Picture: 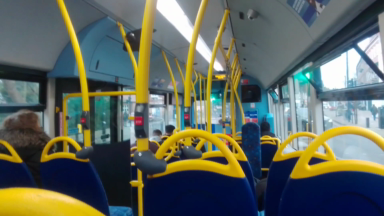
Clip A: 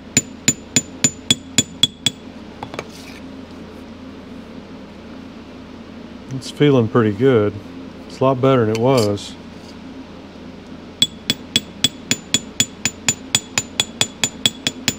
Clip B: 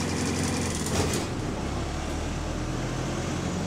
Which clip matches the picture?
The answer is B